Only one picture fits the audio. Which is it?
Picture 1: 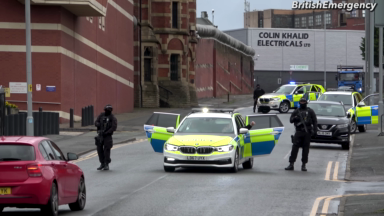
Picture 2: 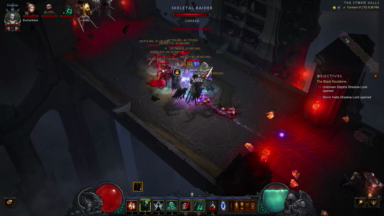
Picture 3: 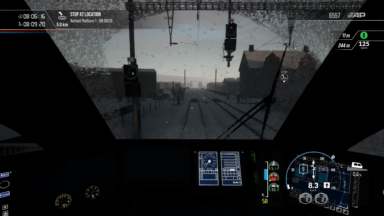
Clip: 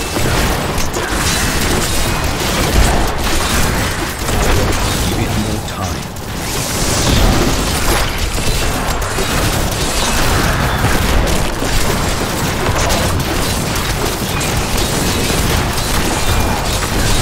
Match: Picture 2